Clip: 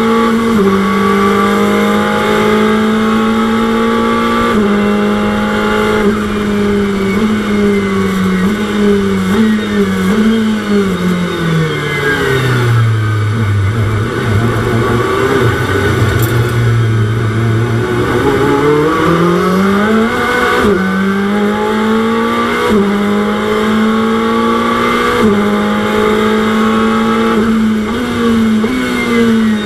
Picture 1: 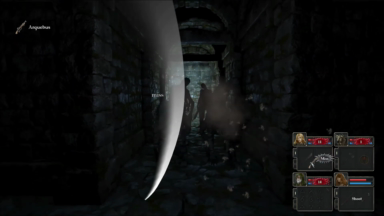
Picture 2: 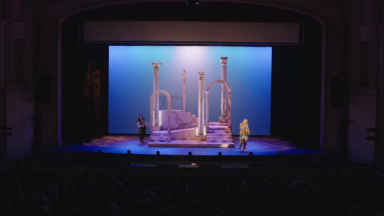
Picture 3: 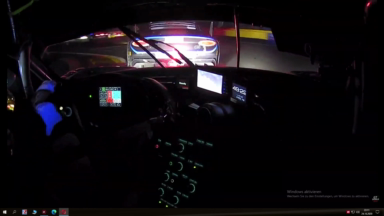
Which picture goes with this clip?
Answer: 3